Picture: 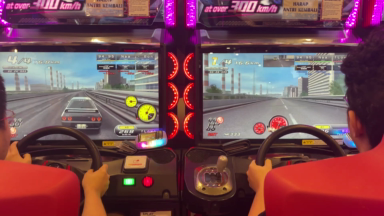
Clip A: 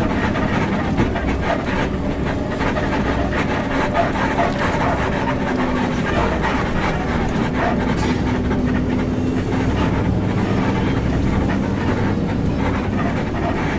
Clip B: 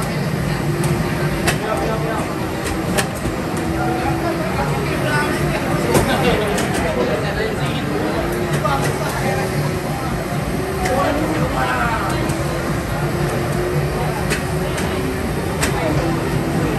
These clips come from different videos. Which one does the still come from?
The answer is B